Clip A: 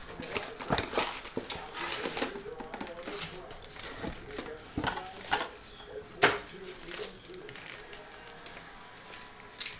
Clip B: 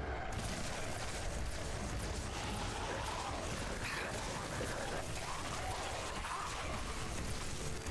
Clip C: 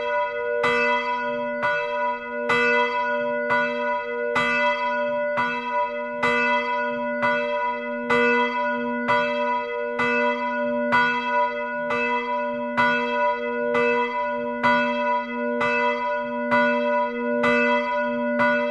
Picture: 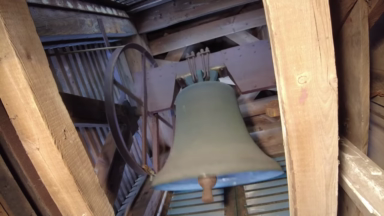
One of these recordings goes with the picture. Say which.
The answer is C